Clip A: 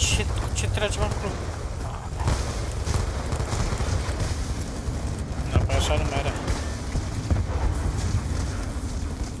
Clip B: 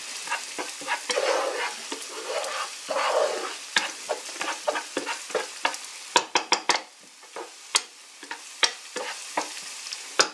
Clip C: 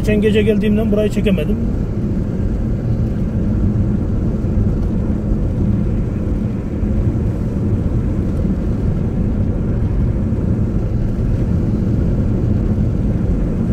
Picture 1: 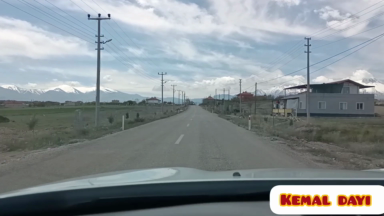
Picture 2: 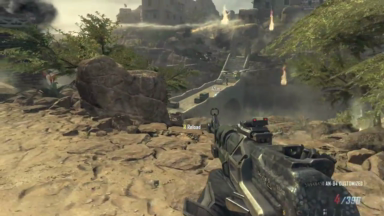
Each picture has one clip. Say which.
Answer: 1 C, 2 A